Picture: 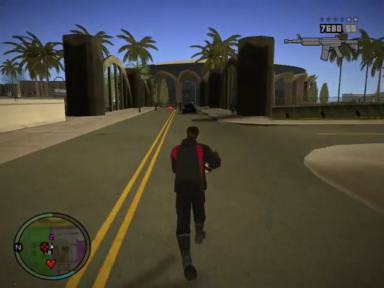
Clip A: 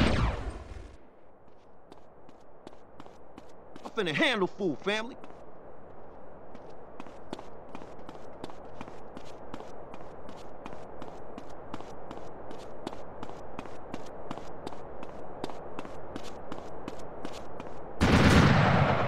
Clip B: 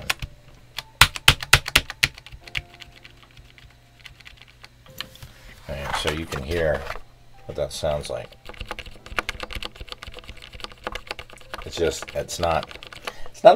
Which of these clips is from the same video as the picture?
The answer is A